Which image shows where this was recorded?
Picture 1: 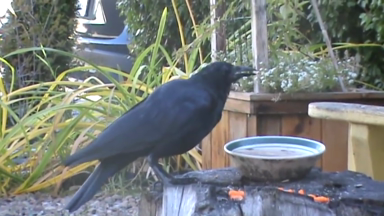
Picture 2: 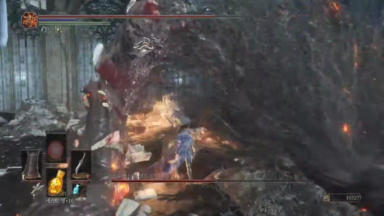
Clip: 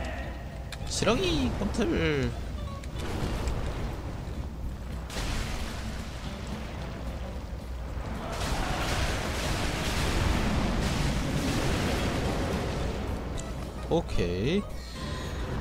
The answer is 2